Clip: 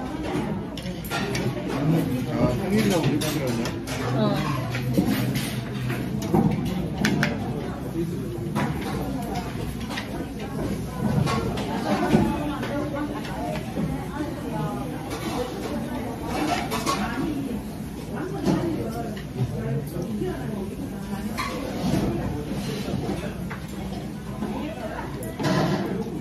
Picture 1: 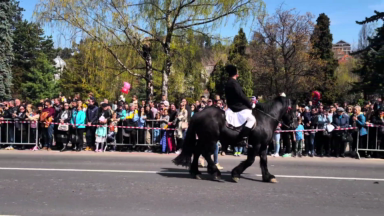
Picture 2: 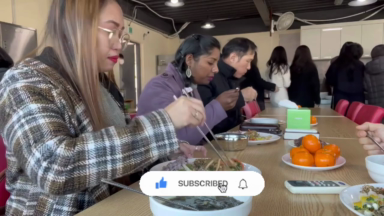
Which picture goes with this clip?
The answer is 2